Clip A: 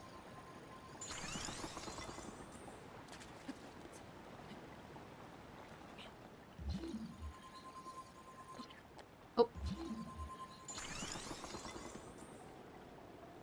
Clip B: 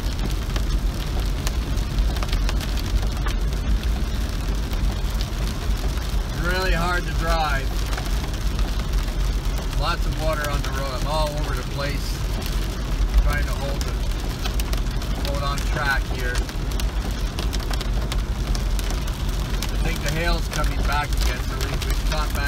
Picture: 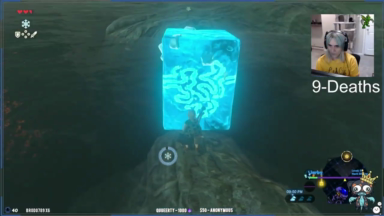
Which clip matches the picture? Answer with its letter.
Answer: A